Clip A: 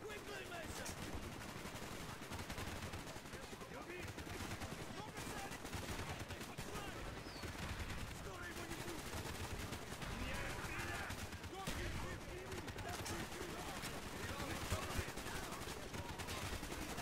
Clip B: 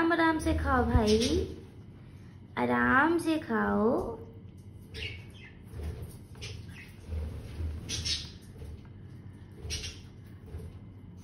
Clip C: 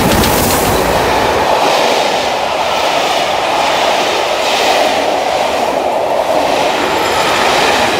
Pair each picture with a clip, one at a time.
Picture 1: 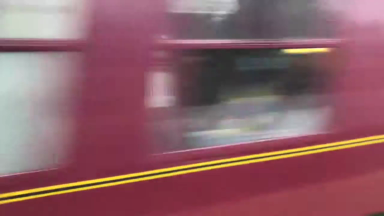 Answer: C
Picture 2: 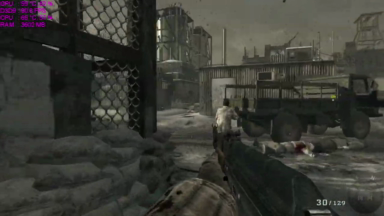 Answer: A